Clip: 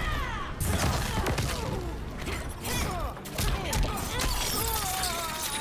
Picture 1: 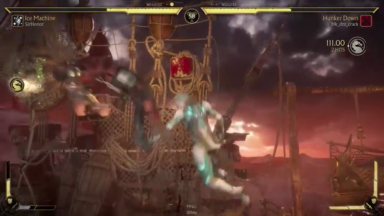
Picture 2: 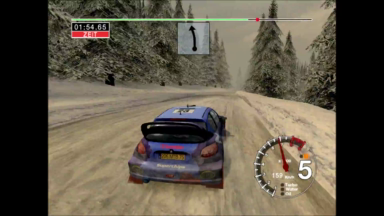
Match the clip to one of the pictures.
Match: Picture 1